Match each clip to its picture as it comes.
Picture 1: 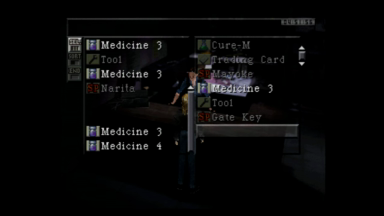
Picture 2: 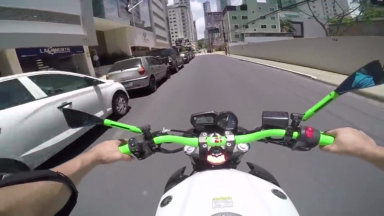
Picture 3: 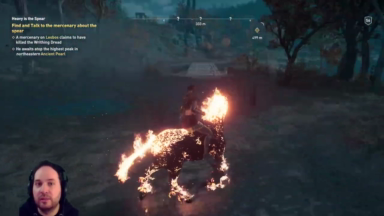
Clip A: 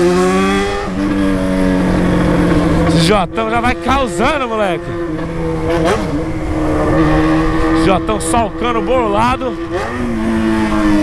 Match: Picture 2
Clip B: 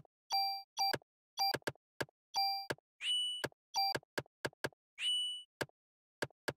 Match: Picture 1